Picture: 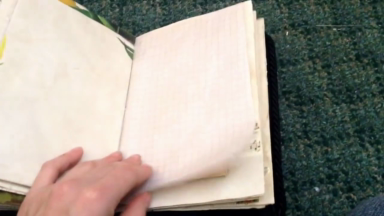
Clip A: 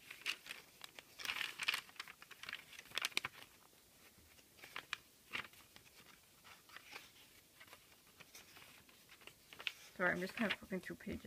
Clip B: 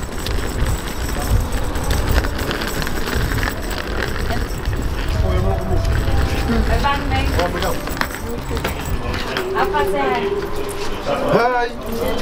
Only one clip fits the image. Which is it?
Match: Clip A